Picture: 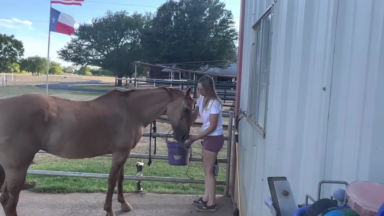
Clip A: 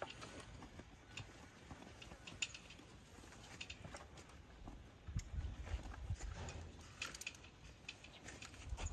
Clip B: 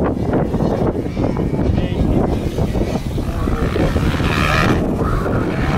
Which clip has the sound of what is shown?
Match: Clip A